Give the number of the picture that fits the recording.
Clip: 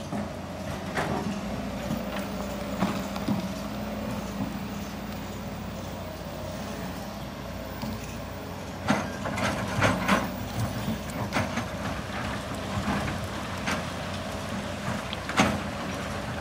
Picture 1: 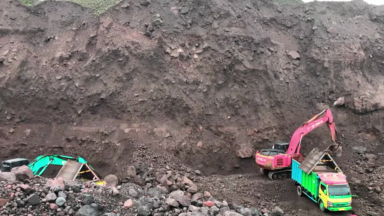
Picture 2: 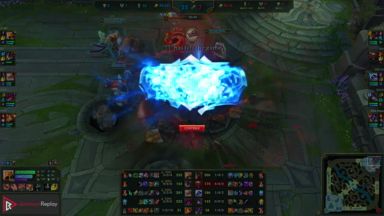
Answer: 1